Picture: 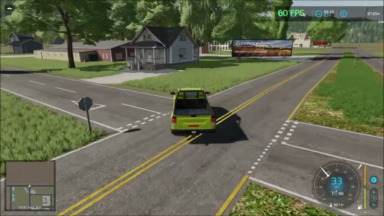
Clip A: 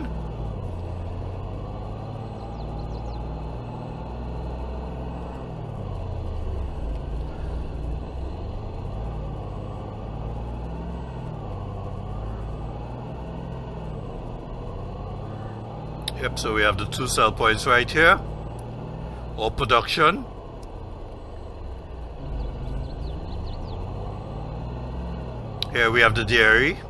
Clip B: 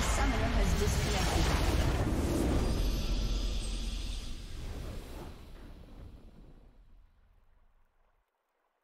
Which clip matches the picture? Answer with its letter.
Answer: A